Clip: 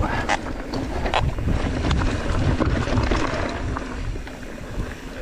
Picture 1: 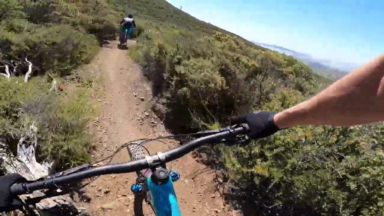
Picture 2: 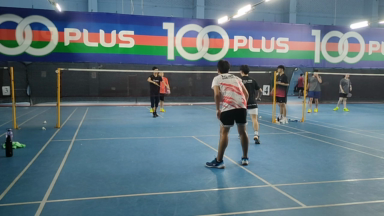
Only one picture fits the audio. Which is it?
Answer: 1